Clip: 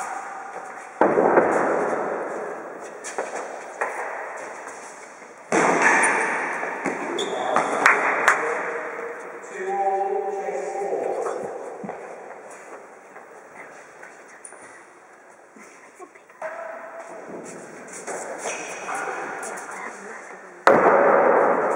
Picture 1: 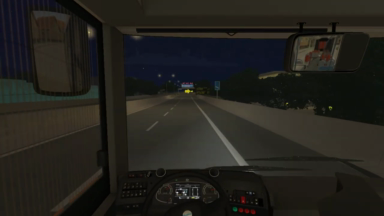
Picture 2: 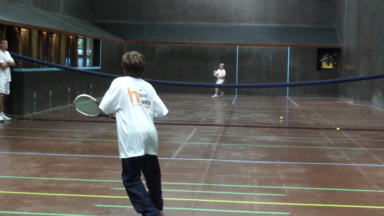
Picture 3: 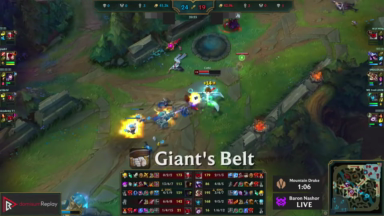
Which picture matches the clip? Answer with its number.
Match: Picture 2